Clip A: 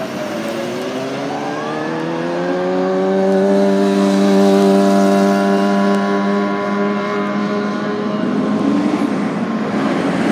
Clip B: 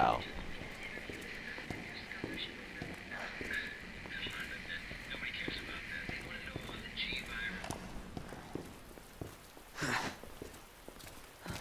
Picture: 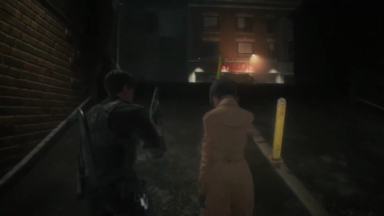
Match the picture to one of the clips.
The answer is B